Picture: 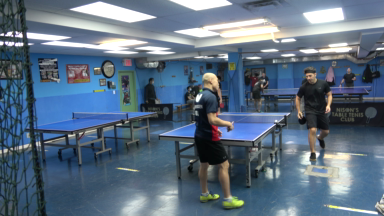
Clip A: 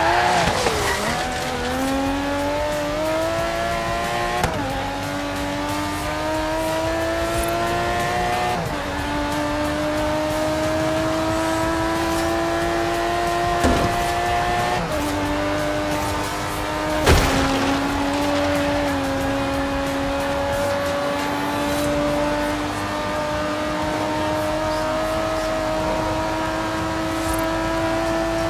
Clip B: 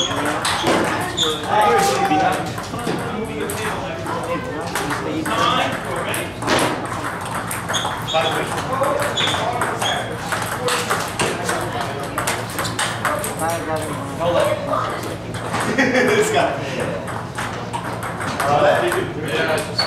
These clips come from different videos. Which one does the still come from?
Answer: B